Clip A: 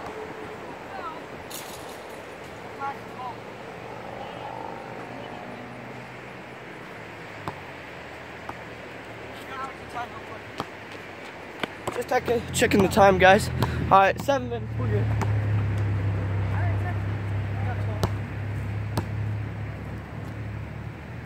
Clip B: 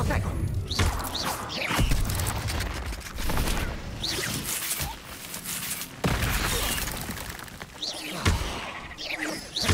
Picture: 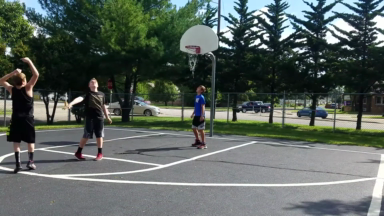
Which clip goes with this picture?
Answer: A